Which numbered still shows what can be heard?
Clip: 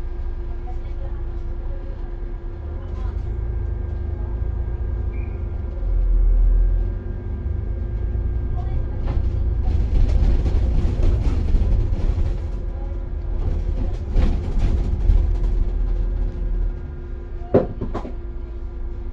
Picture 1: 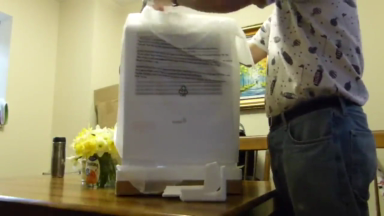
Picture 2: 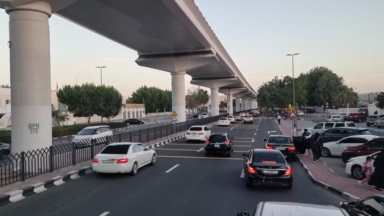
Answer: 2